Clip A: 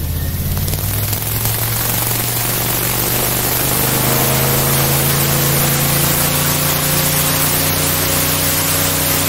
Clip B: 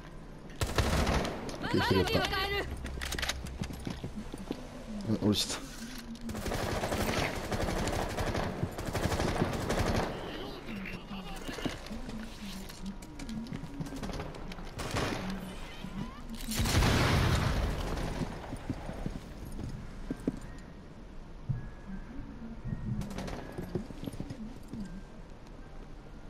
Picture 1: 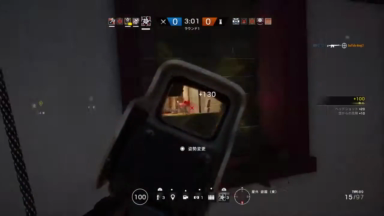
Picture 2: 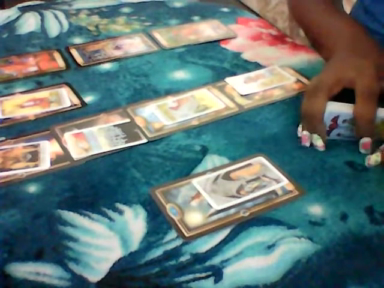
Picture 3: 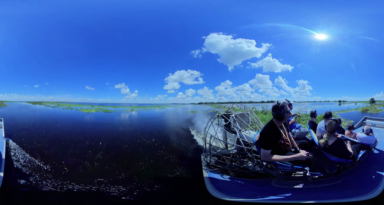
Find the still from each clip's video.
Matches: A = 3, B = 1